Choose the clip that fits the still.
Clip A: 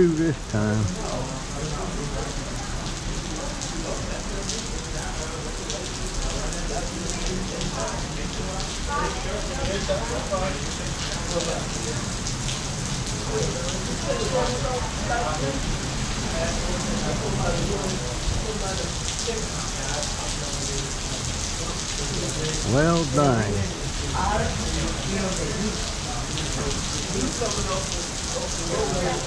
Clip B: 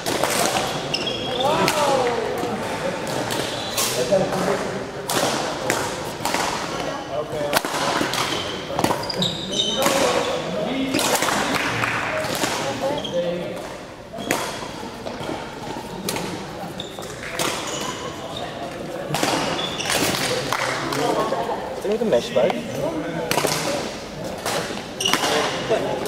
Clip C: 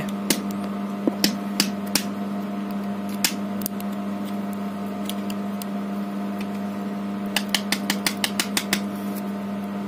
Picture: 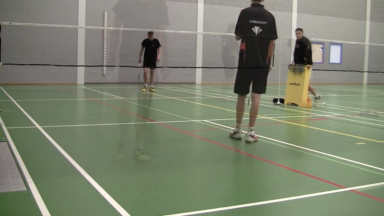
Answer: B